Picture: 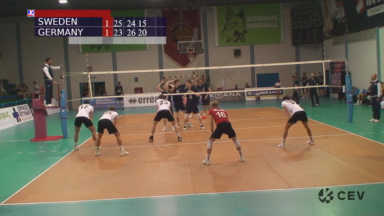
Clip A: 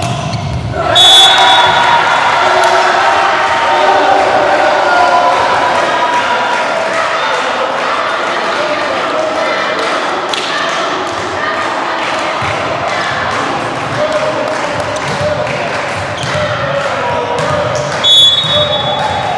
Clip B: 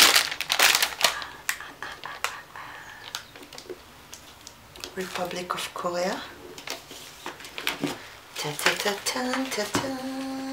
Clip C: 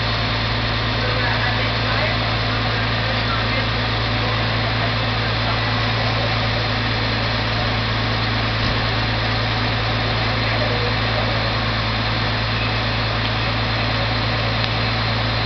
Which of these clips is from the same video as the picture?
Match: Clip A